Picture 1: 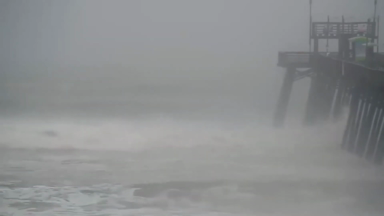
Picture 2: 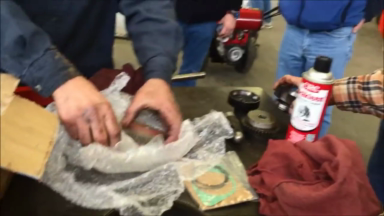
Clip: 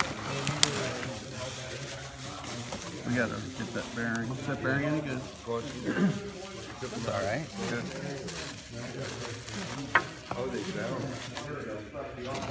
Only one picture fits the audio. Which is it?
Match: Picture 2